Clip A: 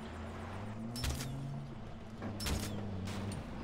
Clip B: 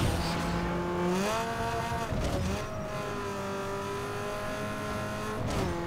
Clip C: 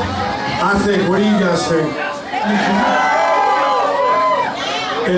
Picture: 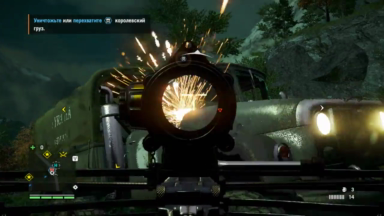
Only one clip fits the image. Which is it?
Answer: A